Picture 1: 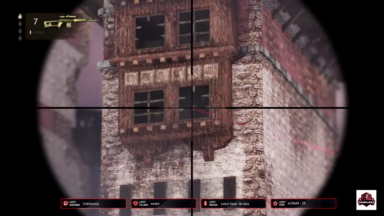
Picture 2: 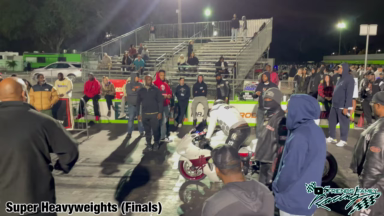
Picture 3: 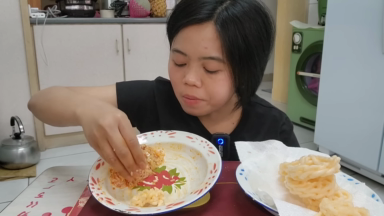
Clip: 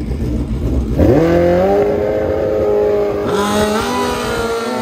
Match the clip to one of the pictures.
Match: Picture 2